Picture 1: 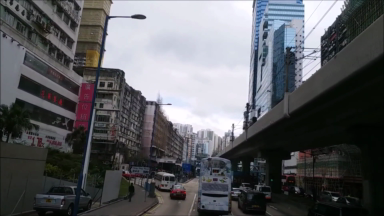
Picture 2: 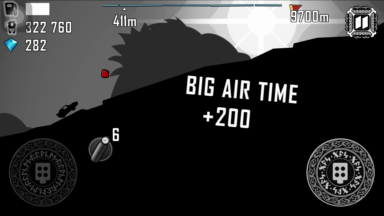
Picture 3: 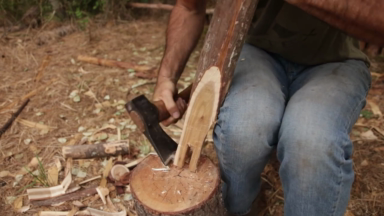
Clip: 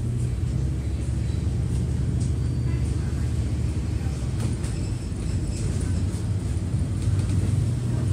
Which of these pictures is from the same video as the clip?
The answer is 1